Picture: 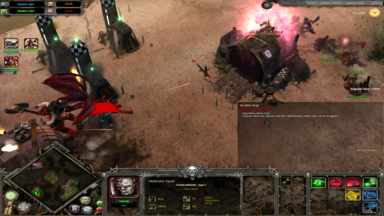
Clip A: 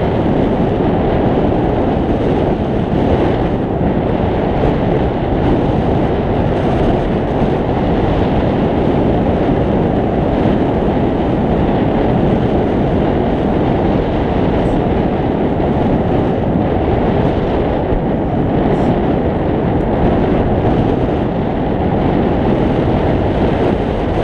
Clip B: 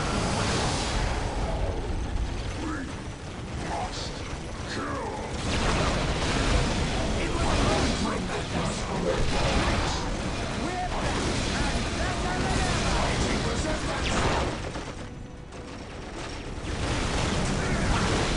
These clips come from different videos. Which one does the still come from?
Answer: B